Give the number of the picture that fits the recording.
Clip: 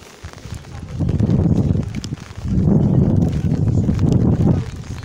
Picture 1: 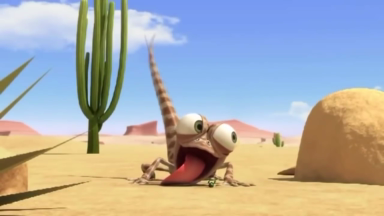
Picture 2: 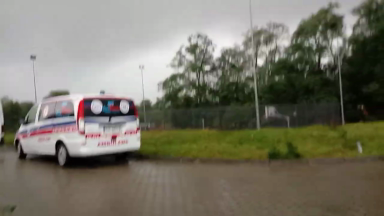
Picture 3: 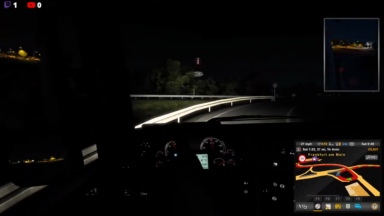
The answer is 2